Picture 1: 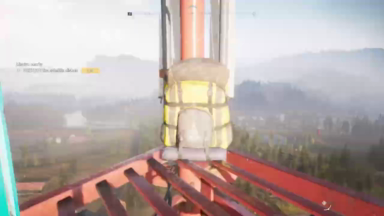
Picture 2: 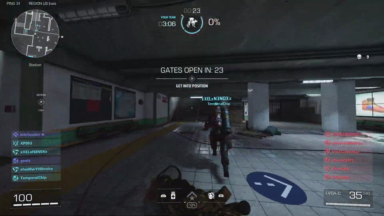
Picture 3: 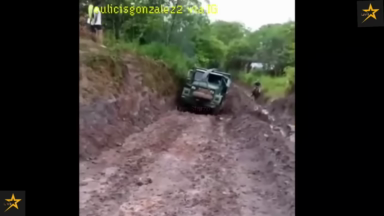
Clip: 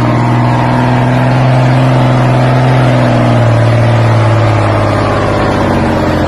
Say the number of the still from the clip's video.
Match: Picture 3